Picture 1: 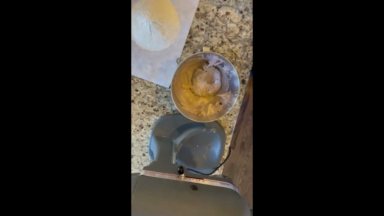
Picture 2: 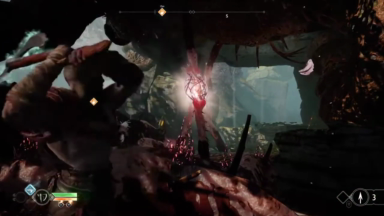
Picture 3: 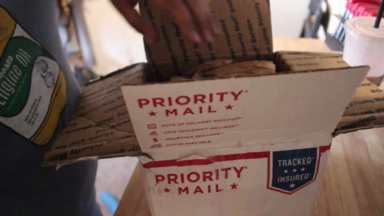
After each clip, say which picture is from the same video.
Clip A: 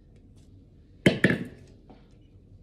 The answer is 1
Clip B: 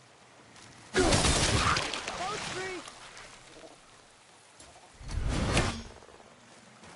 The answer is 2